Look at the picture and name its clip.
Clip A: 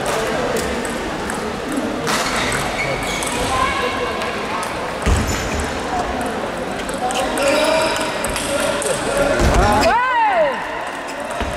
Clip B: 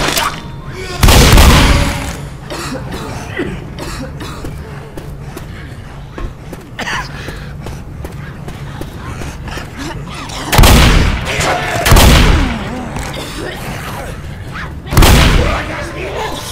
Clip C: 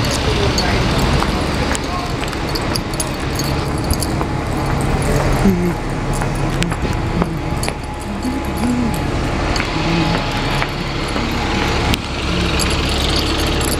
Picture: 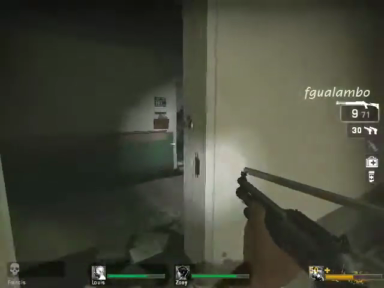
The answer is B